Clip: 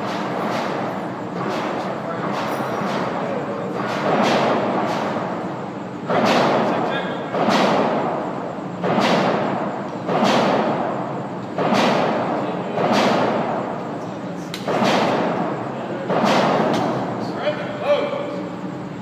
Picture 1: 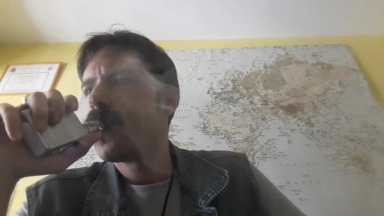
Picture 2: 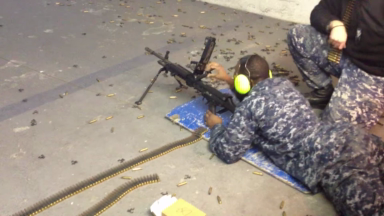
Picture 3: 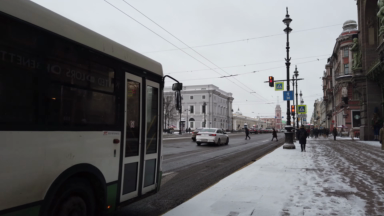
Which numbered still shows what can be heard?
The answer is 2